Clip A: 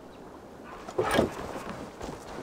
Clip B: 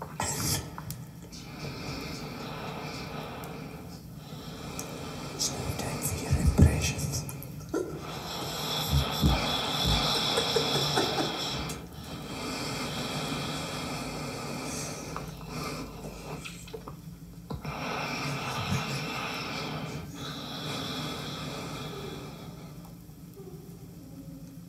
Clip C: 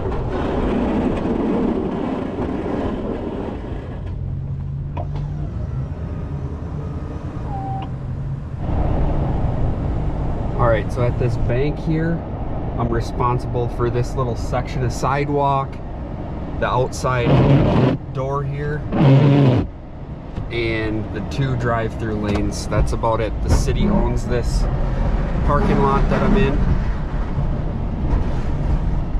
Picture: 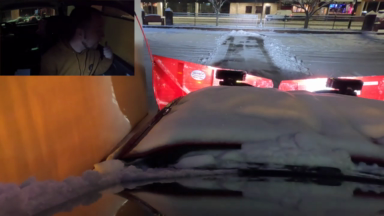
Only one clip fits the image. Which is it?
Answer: C